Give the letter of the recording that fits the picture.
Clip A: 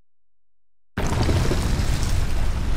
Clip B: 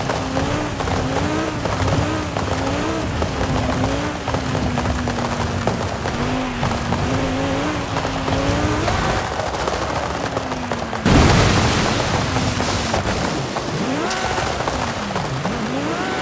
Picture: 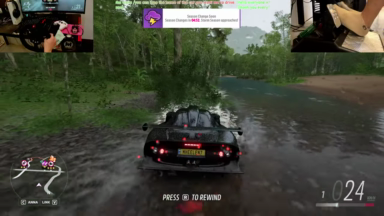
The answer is B